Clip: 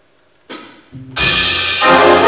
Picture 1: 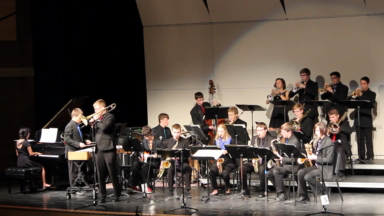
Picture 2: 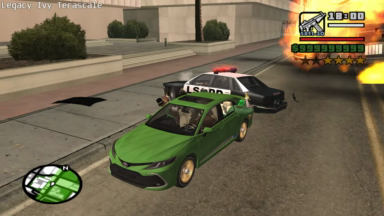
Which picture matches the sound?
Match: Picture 1